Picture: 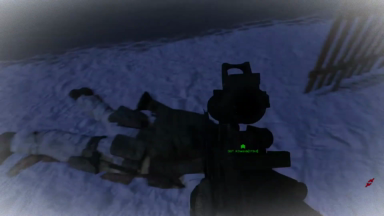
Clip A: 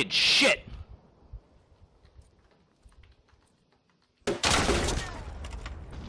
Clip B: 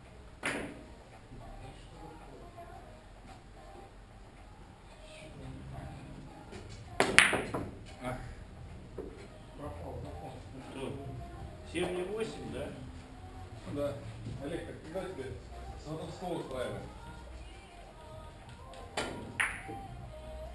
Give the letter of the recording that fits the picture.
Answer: A